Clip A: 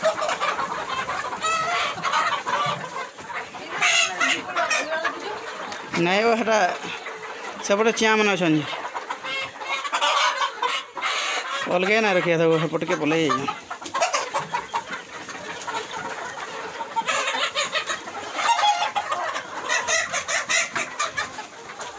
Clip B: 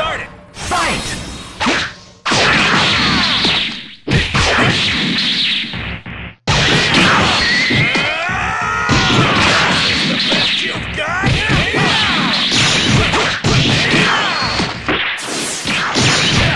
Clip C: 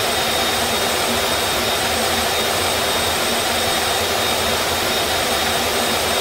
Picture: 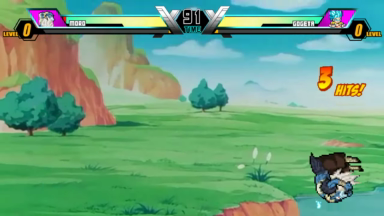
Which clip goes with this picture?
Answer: B